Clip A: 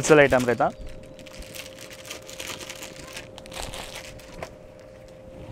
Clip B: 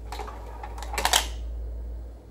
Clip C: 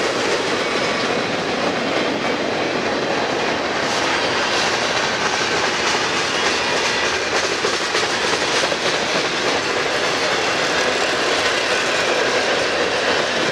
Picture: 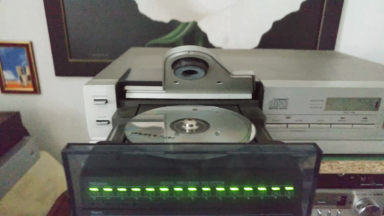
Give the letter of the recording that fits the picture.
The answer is B